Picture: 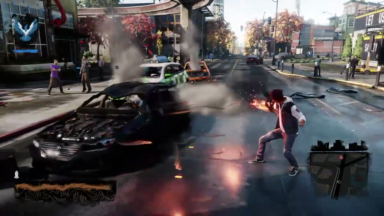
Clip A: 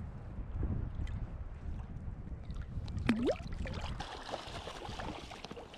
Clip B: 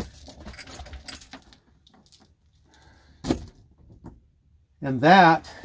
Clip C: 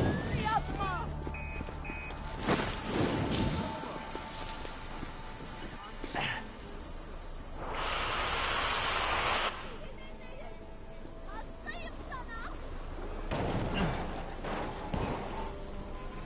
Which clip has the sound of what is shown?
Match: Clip C